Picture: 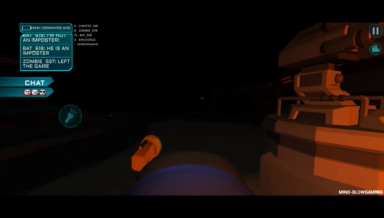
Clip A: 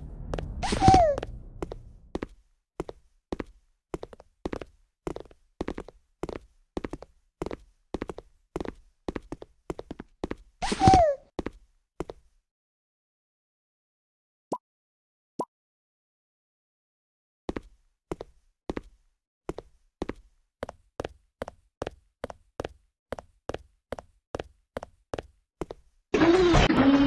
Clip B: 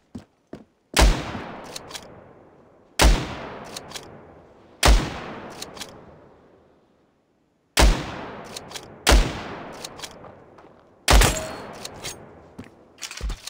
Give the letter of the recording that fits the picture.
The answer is A